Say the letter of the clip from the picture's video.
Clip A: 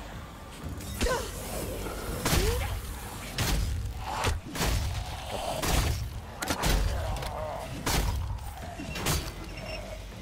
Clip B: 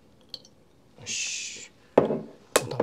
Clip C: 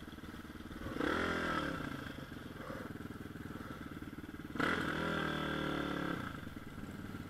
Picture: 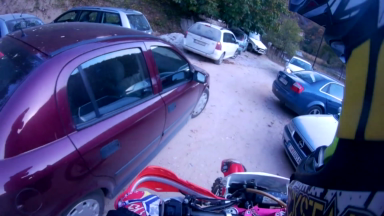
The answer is C